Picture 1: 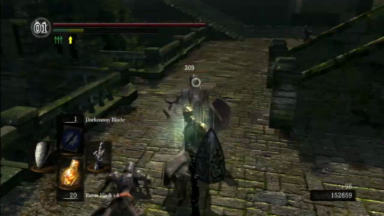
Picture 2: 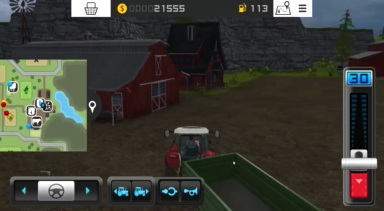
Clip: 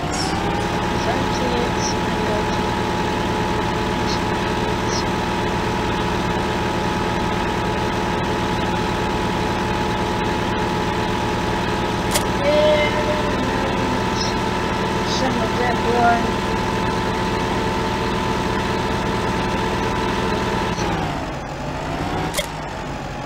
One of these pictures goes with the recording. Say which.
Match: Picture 2